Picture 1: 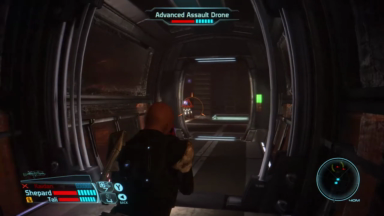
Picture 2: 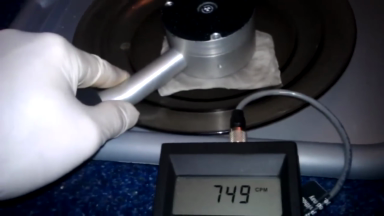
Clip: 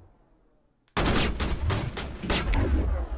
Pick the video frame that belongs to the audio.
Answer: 1